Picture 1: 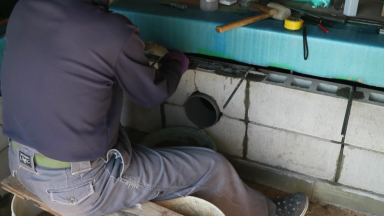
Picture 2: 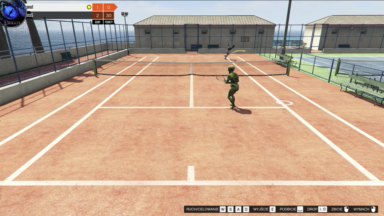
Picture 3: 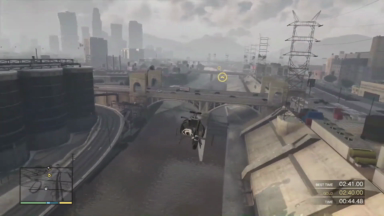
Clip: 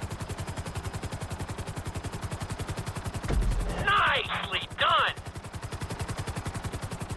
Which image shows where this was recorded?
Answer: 3